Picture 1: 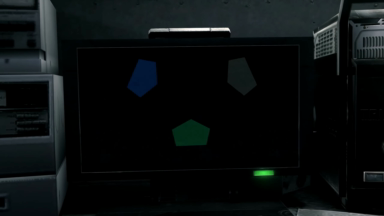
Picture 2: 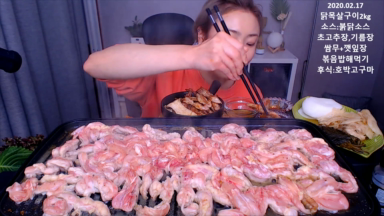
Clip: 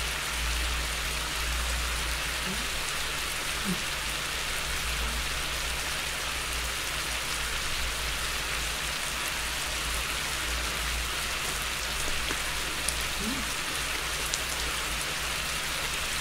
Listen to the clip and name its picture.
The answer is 2